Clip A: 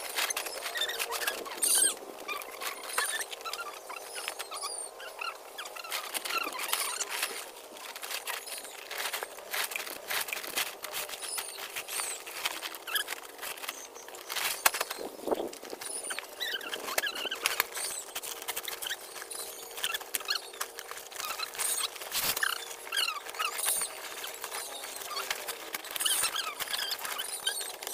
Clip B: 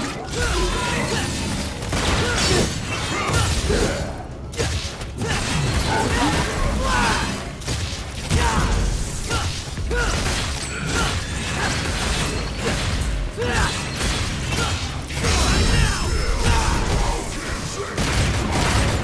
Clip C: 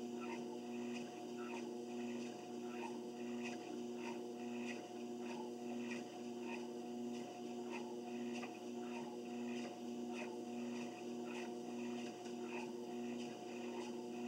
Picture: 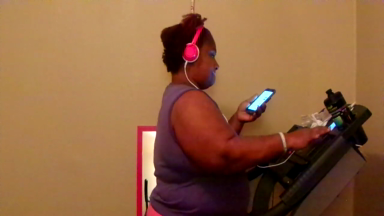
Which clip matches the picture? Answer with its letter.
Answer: C